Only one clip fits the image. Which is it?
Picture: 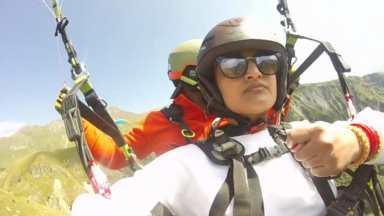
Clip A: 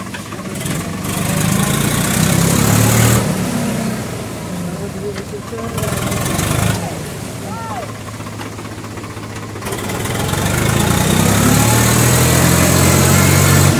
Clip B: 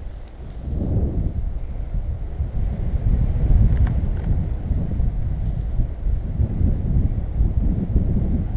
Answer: B